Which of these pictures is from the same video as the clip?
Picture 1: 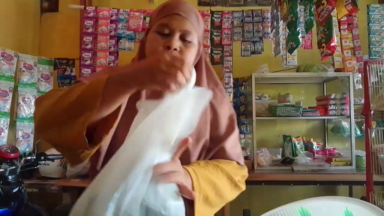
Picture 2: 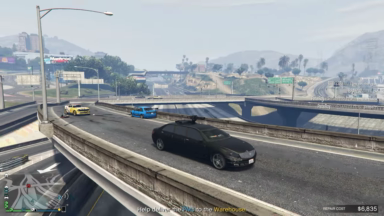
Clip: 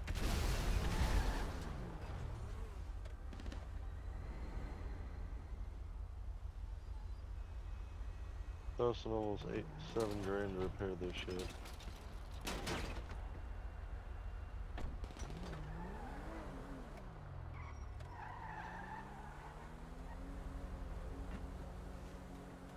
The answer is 2